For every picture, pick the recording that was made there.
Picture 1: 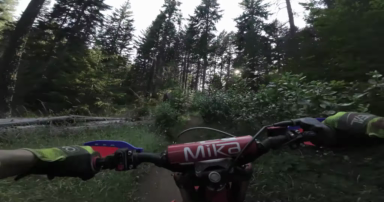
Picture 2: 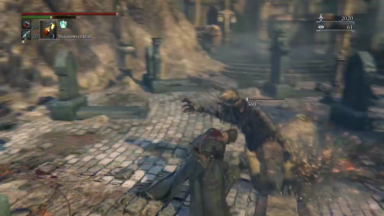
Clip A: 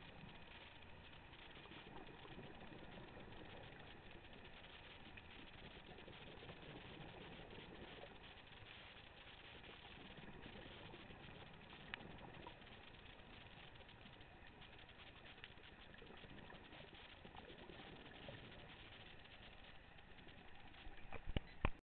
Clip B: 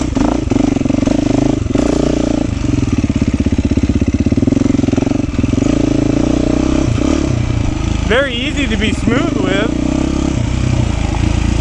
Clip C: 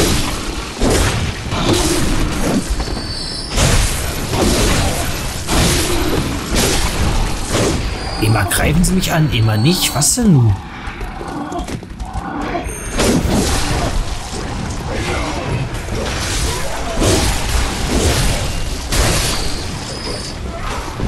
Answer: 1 B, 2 C